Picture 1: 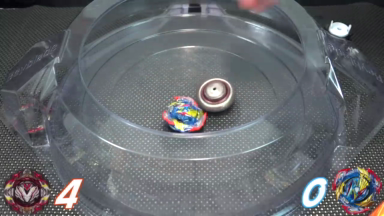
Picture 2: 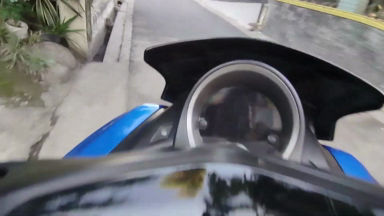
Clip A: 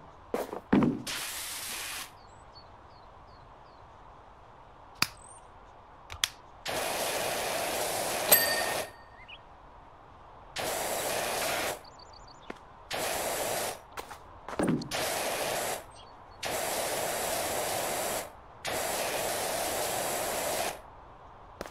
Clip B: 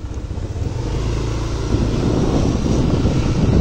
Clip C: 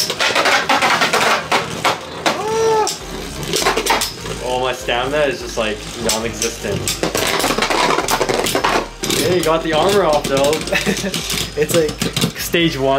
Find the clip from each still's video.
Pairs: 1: C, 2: B